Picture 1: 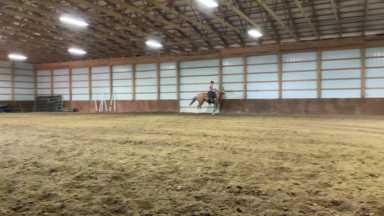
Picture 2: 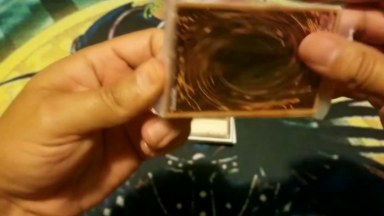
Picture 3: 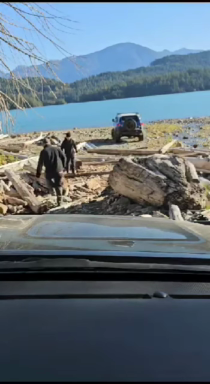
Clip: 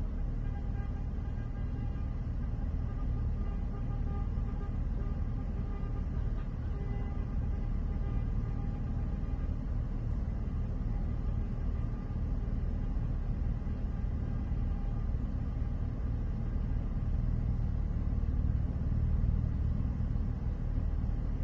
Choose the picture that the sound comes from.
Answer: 3